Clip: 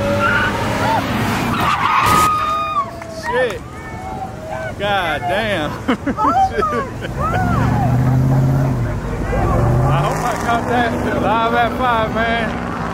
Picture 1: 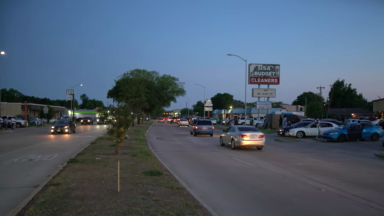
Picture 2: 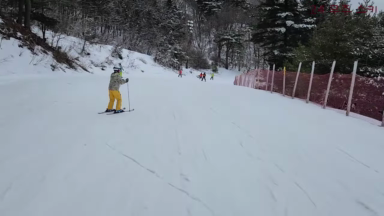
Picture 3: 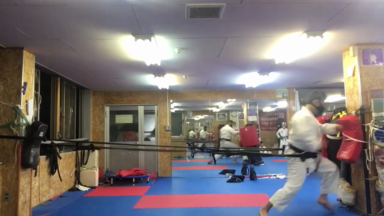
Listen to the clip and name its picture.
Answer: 1